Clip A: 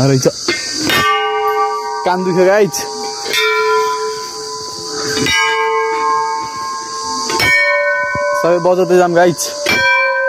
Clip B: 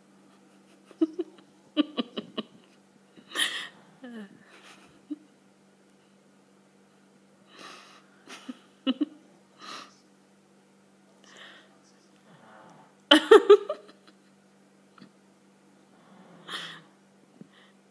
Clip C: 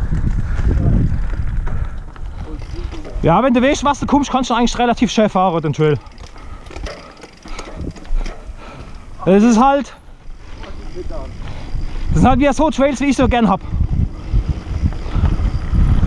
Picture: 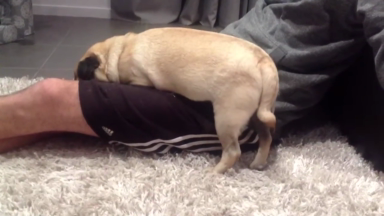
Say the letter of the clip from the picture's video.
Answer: B